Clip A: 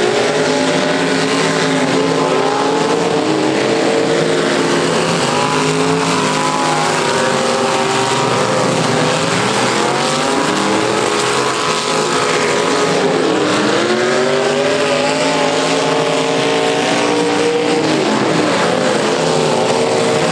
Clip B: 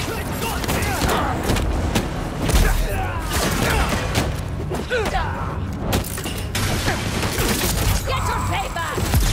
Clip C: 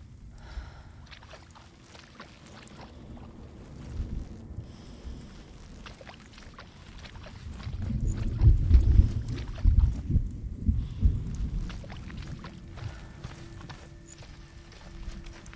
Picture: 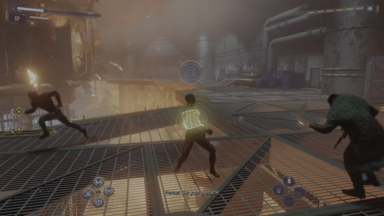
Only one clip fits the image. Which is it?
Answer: B